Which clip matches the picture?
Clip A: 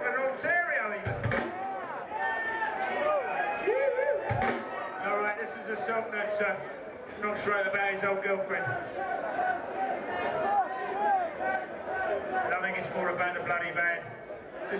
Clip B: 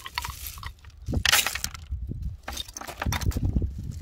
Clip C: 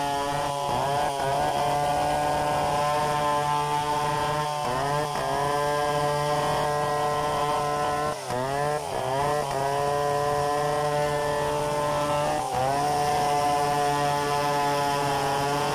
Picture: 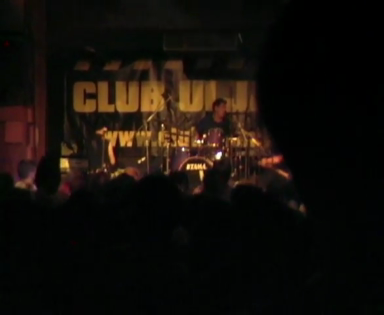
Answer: A